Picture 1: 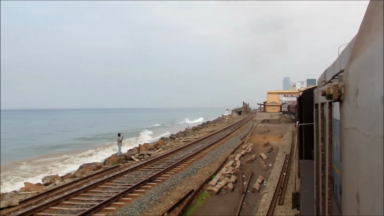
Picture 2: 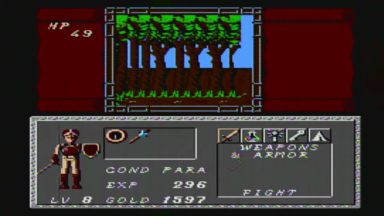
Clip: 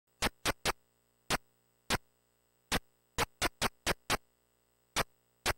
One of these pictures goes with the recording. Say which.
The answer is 2